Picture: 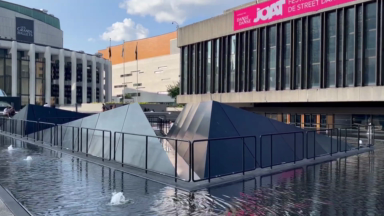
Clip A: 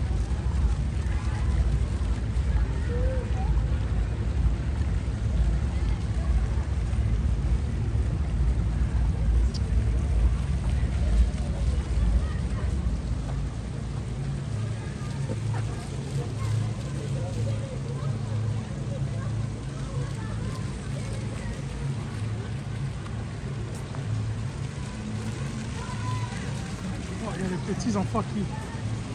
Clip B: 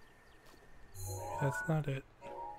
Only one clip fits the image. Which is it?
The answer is A